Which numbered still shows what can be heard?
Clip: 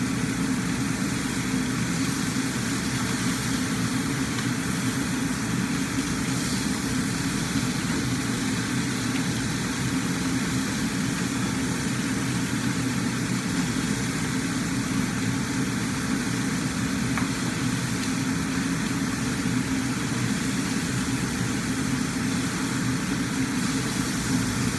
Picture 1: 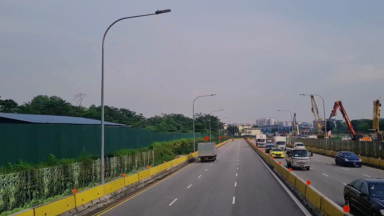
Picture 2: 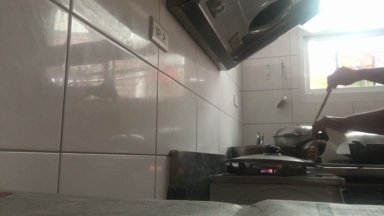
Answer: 2